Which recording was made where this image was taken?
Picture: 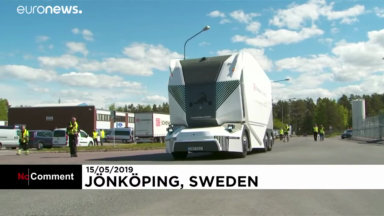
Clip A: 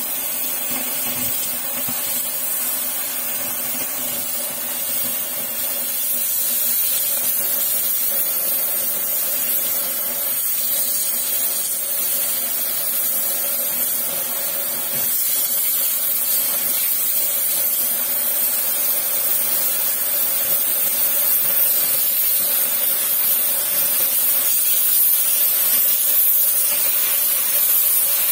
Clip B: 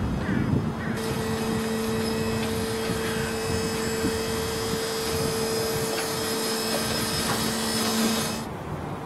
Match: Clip B